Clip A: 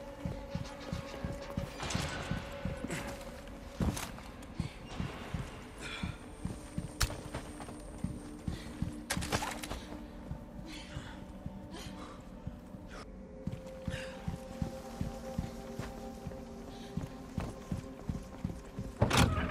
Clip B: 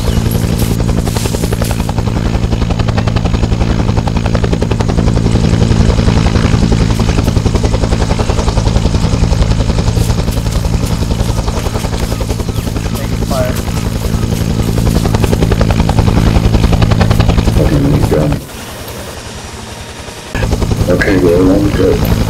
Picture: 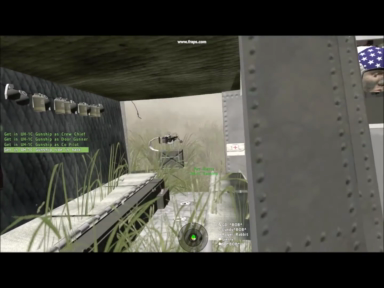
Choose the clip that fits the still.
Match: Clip B